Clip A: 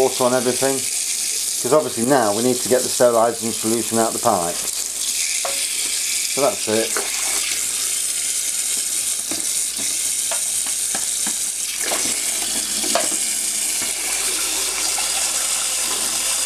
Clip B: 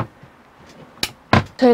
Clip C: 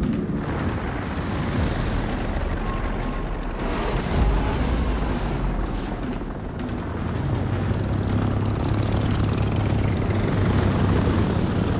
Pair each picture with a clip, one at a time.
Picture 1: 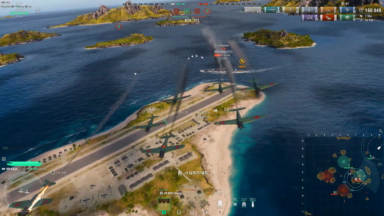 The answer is C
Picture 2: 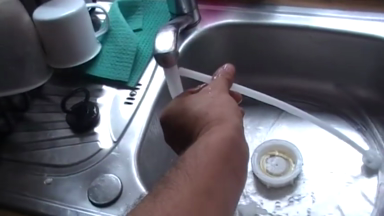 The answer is A